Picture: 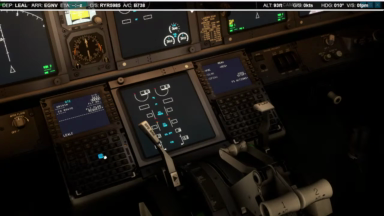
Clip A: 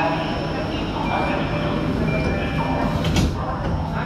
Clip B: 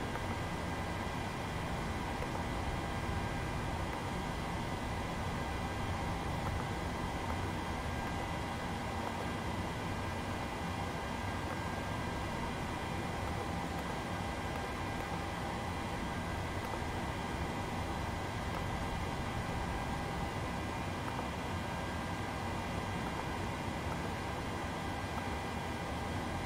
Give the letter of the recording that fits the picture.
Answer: B